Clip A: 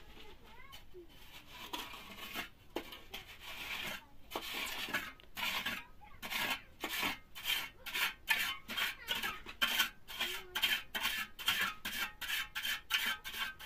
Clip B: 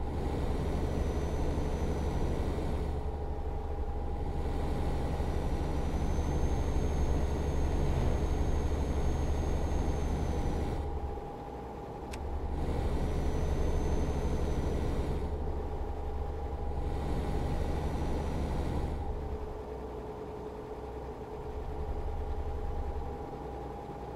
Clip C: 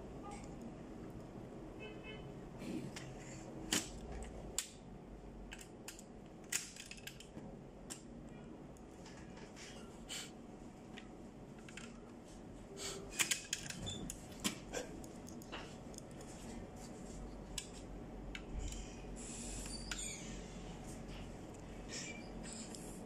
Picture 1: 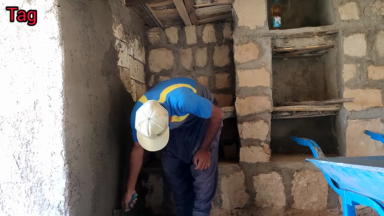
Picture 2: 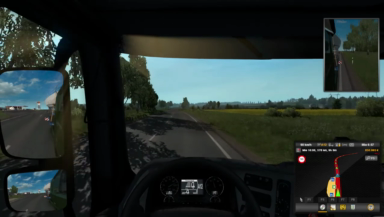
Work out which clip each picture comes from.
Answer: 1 A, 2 B